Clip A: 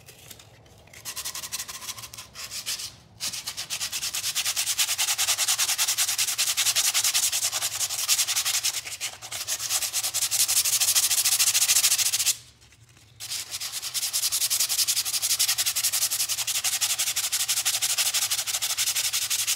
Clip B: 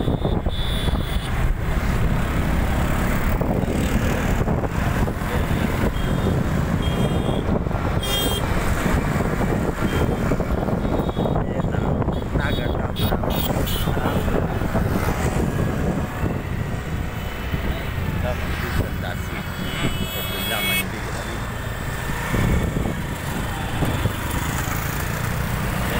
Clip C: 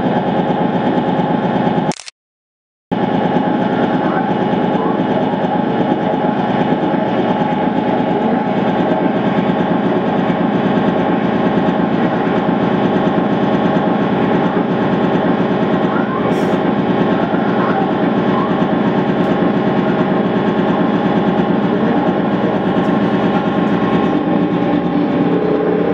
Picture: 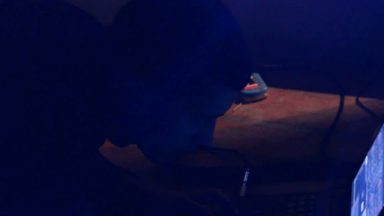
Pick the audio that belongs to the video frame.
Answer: C